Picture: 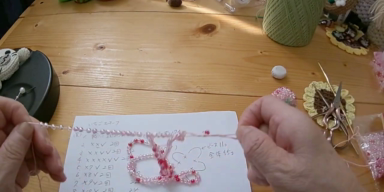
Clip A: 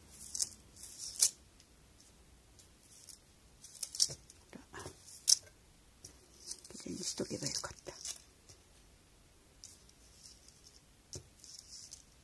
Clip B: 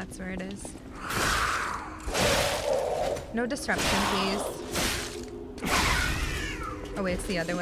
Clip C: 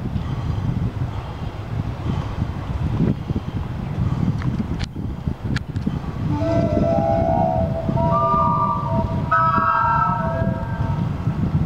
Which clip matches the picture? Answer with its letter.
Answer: A